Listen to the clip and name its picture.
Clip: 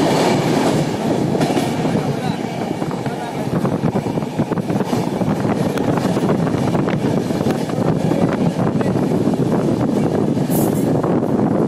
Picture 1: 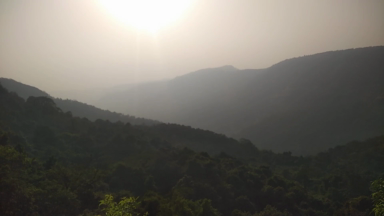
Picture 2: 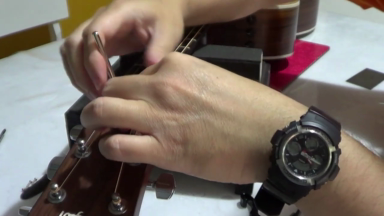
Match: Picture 1